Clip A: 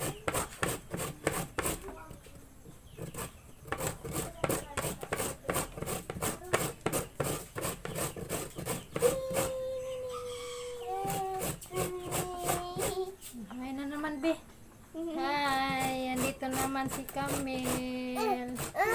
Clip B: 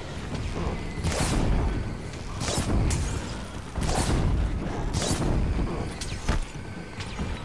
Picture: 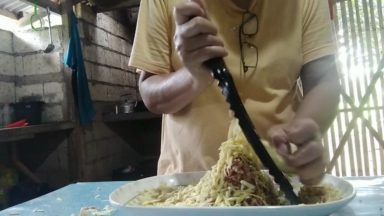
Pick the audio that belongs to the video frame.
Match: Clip A